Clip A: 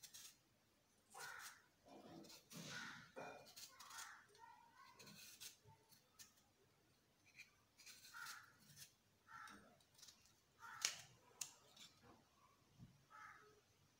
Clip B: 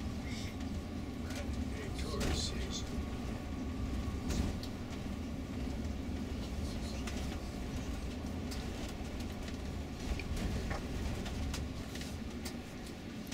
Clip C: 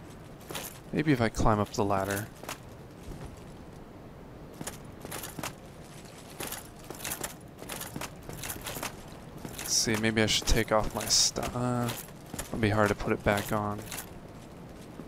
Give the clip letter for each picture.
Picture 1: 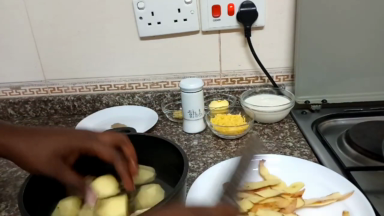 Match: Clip A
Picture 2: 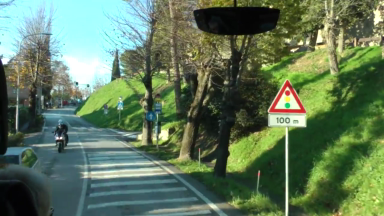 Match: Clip B